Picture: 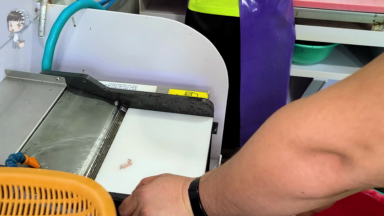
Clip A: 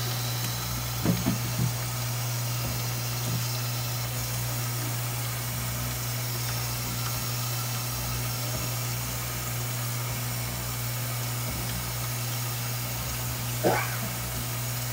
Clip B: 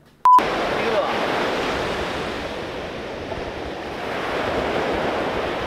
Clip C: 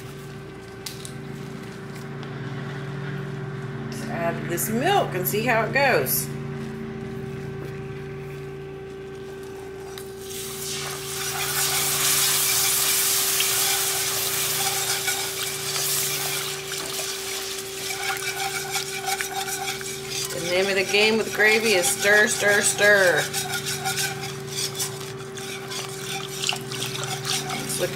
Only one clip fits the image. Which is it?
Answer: A